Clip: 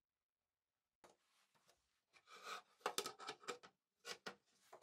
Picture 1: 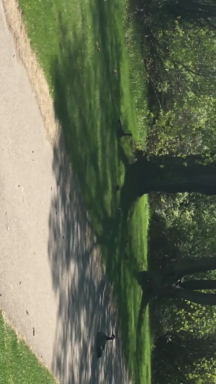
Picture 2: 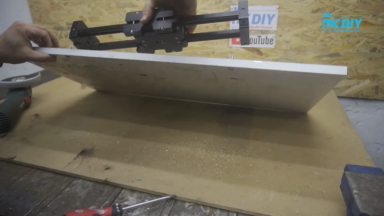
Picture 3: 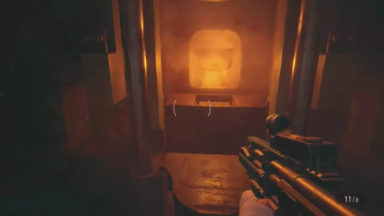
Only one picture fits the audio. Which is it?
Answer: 2